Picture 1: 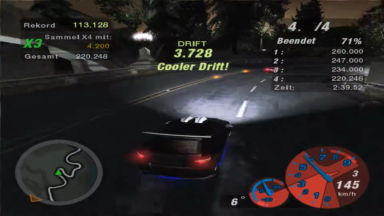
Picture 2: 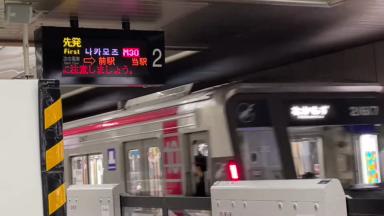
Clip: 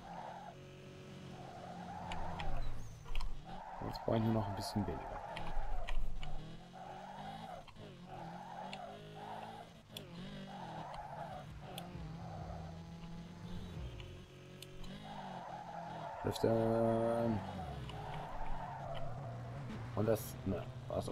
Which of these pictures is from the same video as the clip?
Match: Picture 1